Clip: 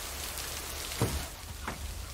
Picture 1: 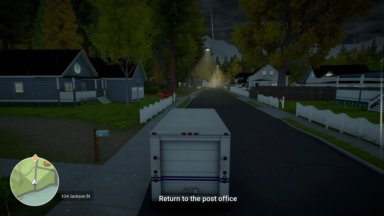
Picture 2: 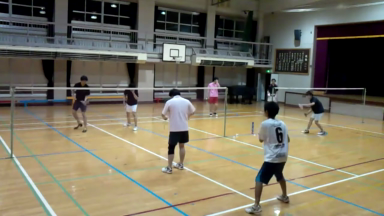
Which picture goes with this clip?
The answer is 1